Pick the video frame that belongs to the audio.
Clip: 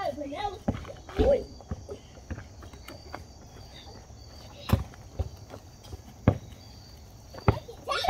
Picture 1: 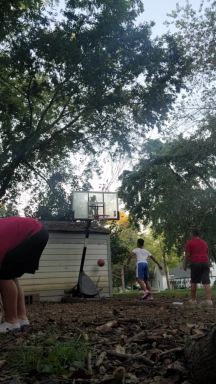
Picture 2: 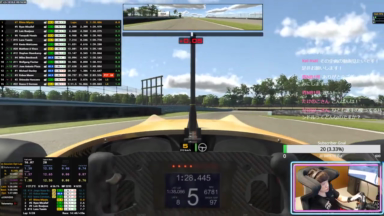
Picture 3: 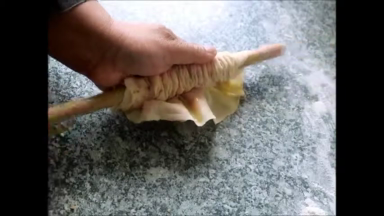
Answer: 1